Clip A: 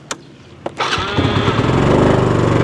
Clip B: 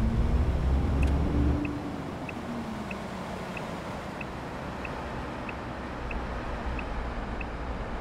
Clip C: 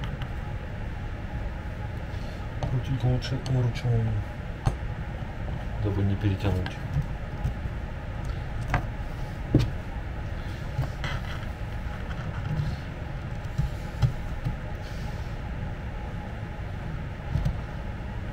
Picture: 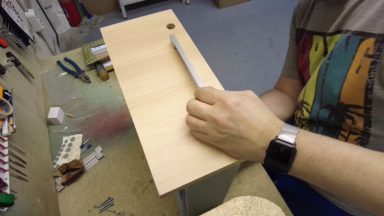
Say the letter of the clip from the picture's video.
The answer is C